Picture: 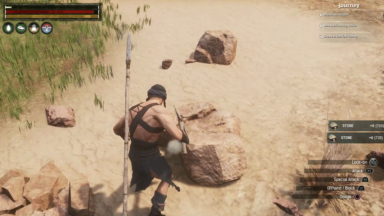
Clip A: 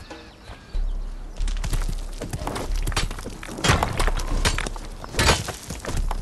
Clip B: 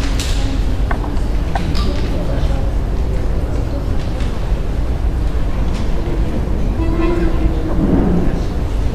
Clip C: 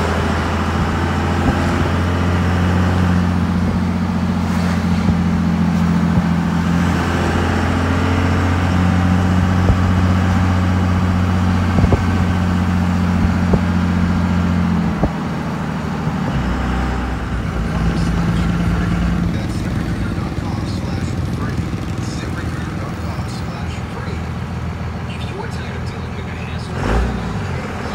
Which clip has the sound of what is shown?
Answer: A